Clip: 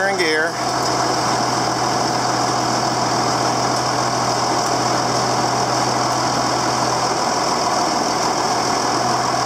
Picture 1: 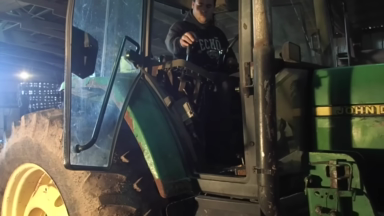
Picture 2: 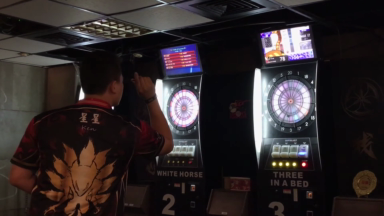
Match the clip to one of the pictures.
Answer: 1